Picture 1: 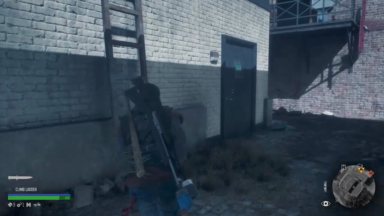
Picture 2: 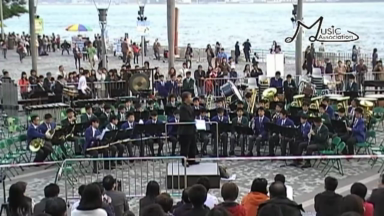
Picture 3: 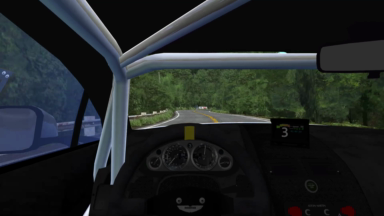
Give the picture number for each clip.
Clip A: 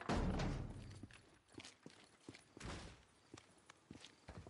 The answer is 1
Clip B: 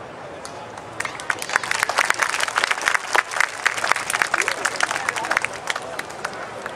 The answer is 2